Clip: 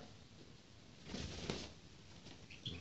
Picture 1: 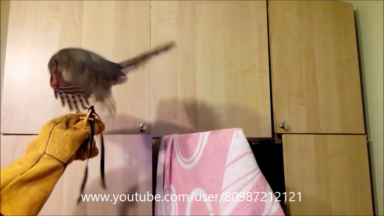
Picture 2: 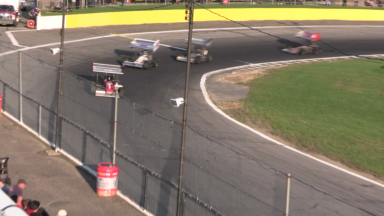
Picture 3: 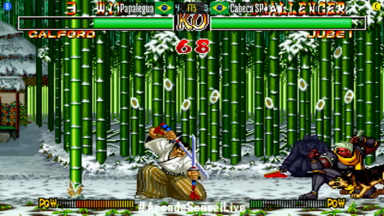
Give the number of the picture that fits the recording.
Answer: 1